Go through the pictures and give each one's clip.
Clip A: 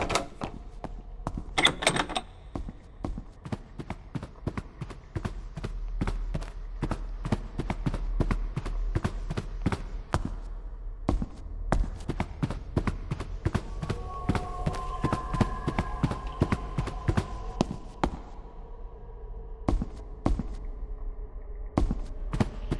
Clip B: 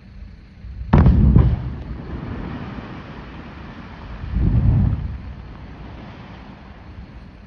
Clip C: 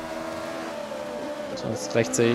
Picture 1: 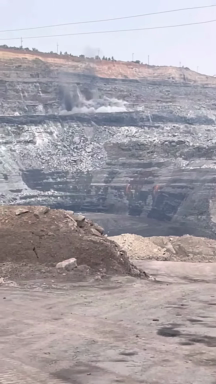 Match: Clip B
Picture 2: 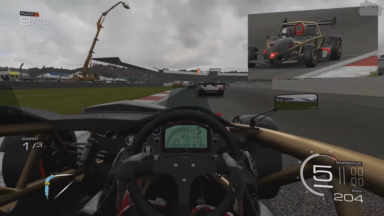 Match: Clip C